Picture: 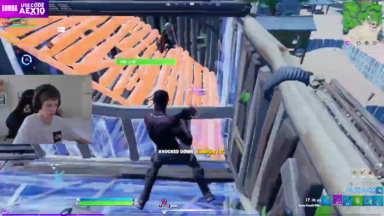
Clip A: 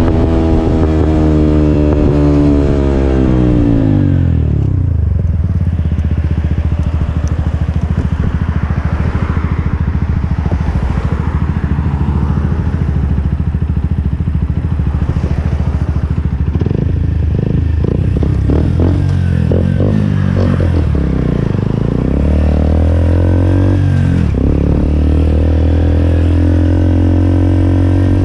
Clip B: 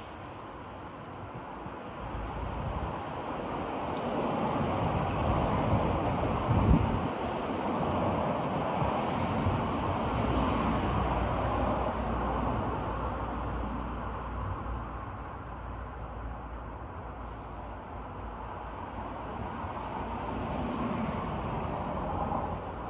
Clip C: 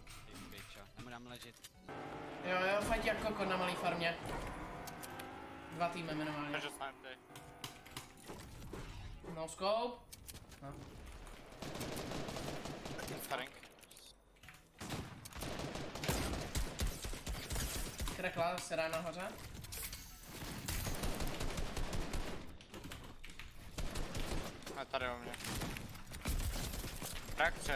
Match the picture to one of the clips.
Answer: C